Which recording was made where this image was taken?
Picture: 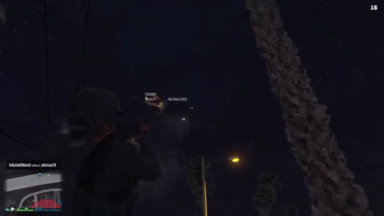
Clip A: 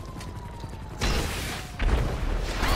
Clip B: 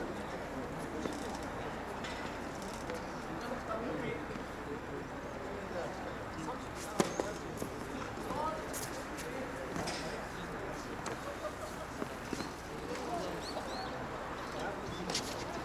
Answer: A